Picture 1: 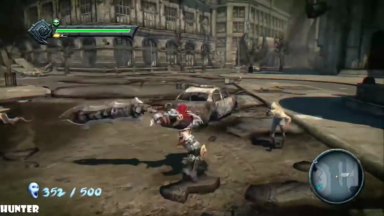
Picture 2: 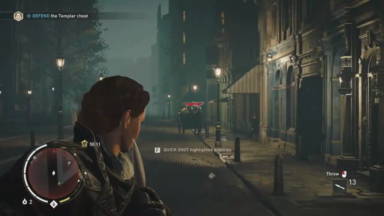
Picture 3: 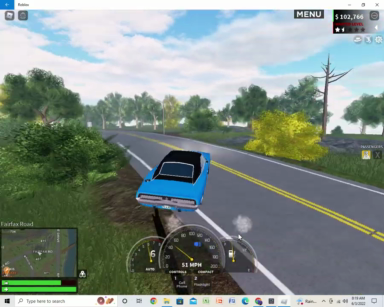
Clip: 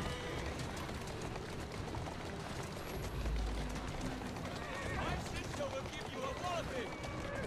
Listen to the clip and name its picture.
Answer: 2